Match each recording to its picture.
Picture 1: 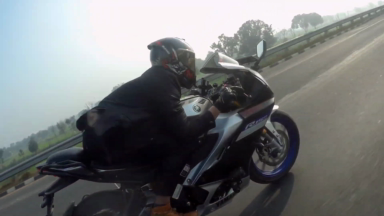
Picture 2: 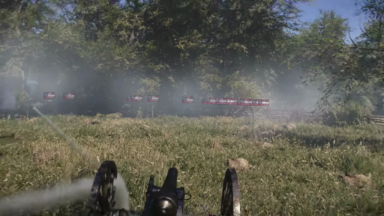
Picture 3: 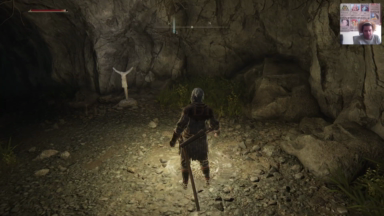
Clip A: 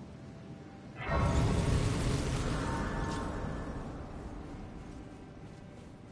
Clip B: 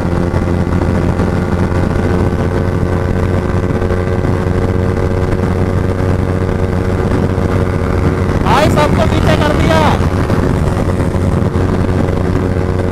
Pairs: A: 3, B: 1